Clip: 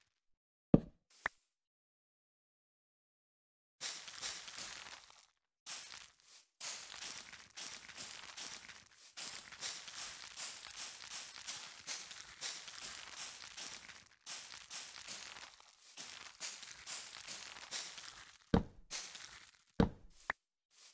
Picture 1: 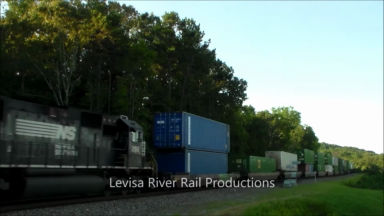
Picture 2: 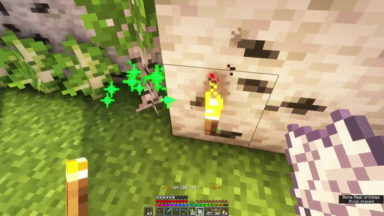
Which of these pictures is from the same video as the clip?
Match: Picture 2